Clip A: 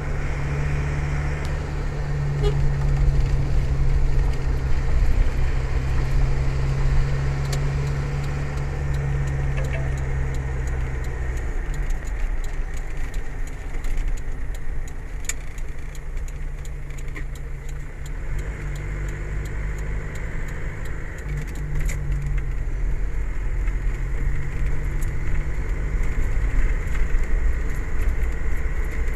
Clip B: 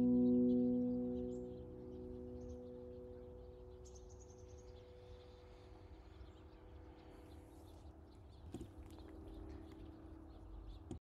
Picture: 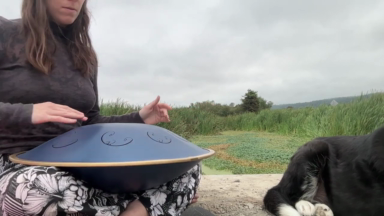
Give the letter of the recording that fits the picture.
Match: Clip B